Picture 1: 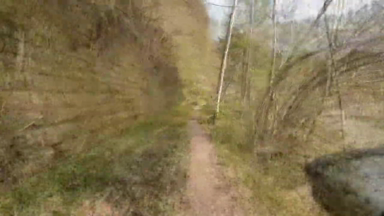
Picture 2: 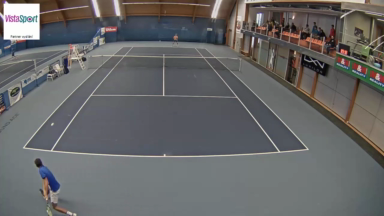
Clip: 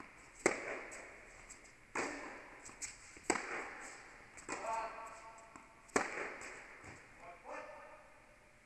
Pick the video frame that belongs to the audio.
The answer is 2